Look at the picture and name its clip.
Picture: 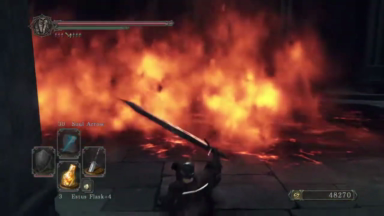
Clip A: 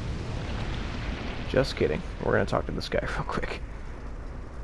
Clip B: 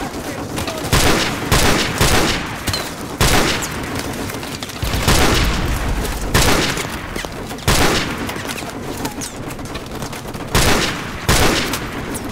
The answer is A